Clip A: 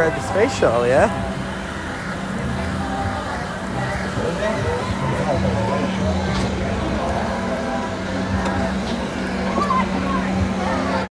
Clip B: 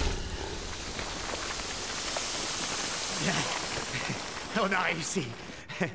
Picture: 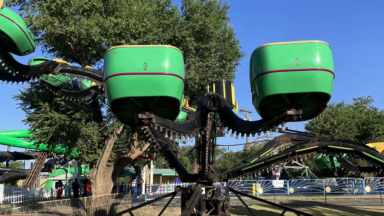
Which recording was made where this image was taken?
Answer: A